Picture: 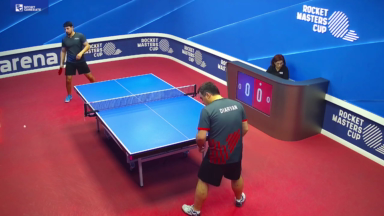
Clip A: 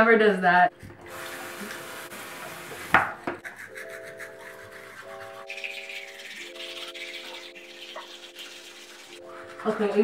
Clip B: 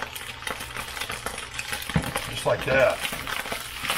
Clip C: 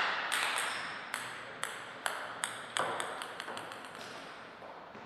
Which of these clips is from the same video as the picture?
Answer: C